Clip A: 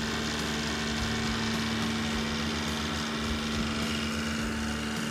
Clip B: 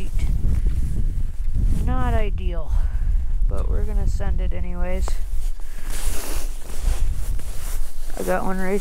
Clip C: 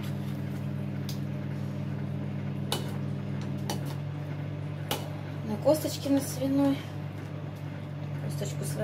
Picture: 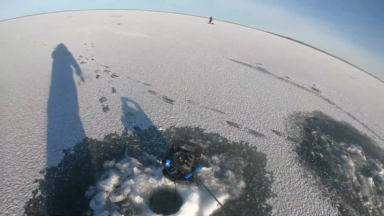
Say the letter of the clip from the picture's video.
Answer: B